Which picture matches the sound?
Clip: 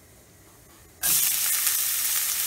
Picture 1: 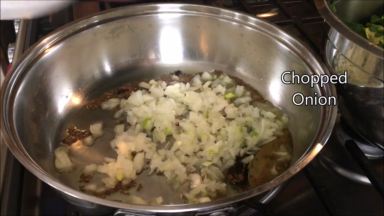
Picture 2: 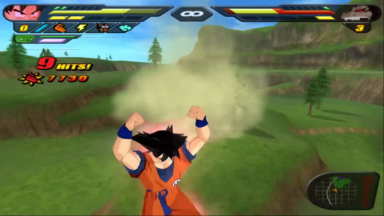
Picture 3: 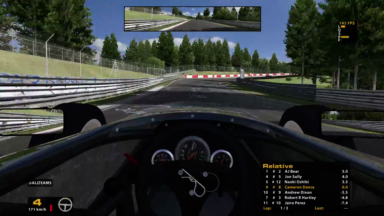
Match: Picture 1